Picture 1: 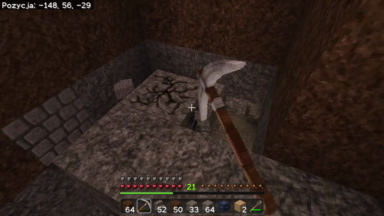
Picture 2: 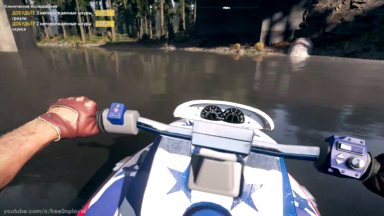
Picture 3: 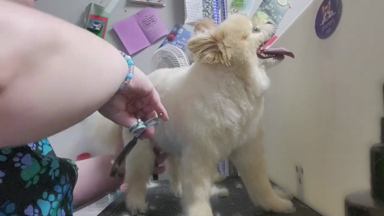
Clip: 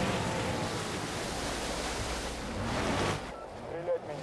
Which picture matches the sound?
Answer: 2